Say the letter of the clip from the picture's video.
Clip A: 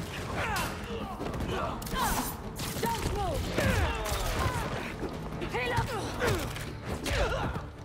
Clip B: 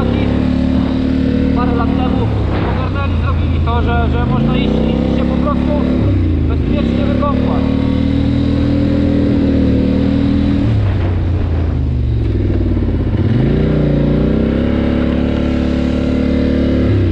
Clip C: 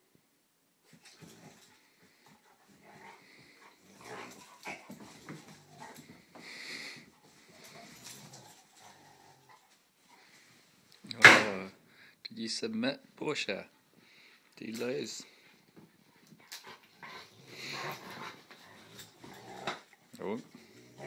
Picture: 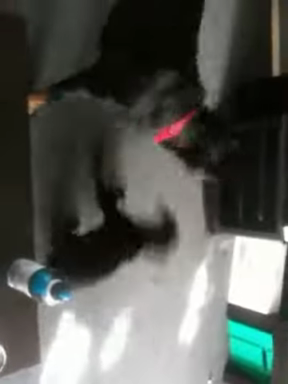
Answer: C